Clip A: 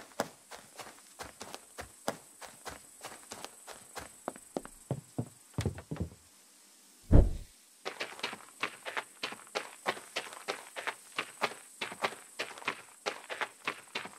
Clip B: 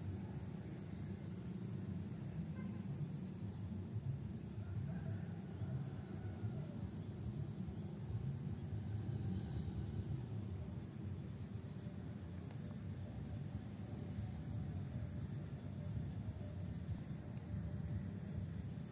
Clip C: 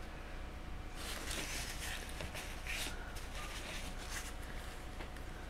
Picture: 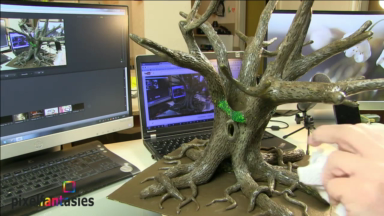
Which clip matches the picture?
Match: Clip C